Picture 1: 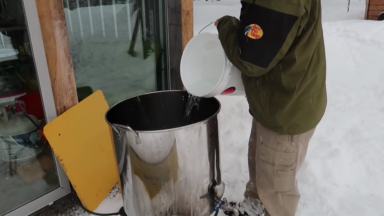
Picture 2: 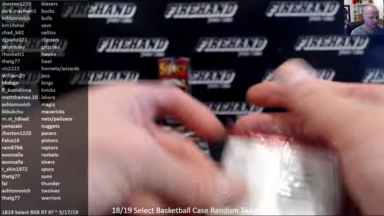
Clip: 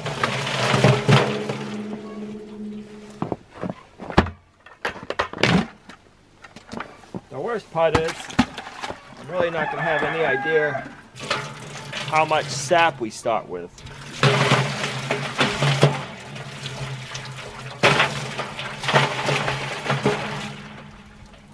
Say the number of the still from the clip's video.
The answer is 1